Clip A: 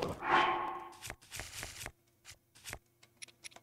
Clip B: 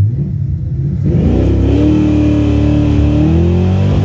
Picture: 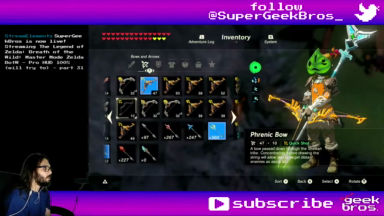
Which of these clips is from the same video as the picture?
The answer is A